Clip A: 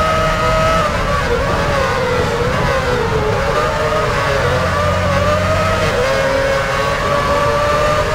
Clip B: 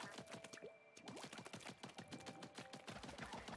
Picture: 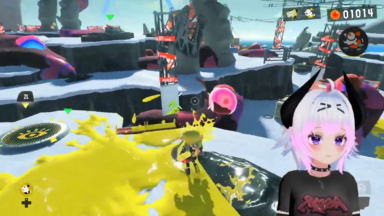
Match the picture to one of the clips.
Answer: B